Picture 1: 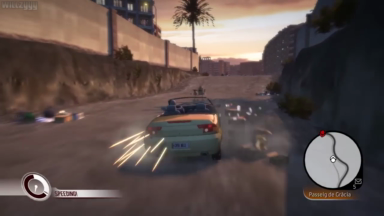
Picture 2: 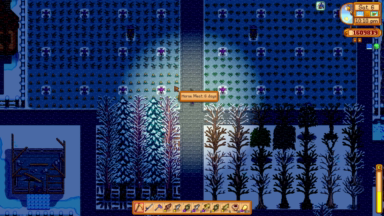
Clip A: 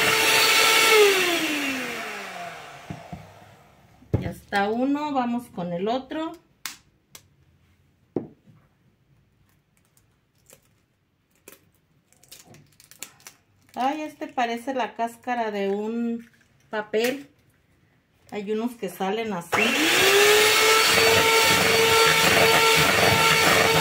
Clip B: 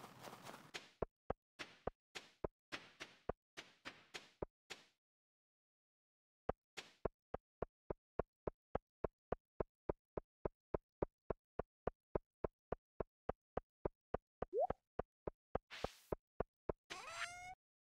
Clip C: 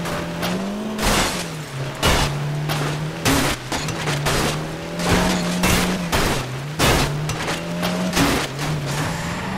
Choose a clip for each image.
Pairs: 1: C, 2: B